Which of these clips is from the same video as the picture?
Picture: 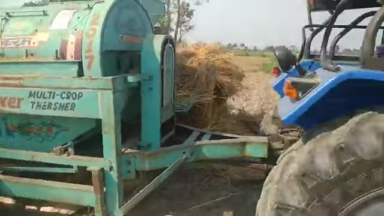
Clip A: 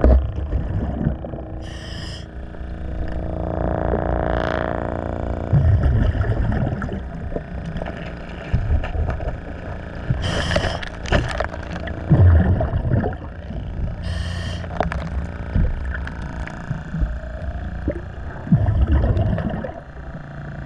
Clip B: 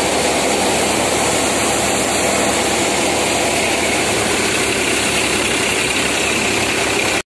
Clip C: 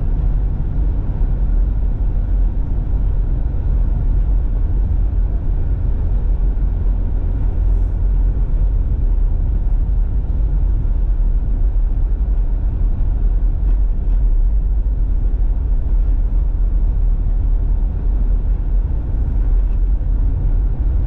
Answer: B